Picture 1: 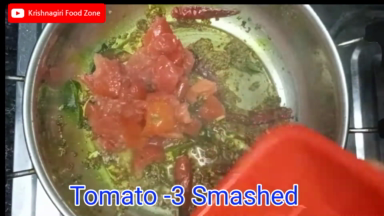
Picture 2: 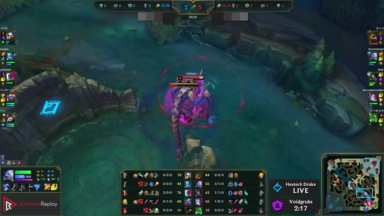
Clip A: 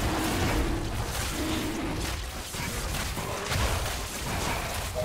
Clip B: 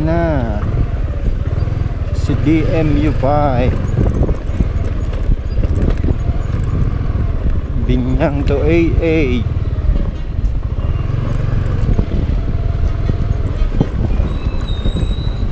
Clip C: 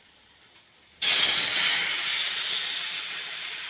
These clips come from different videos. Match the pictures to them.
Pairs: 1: C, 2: A